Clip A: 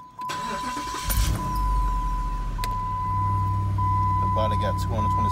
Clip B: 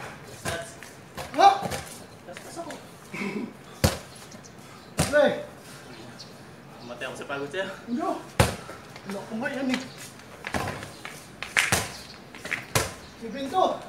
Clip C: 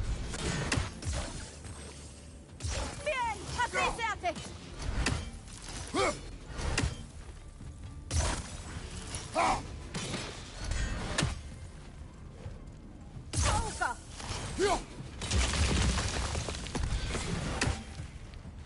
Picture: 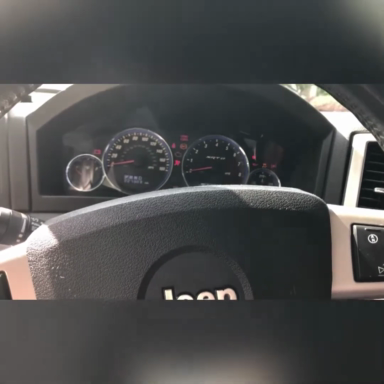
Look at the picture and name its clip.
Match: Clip A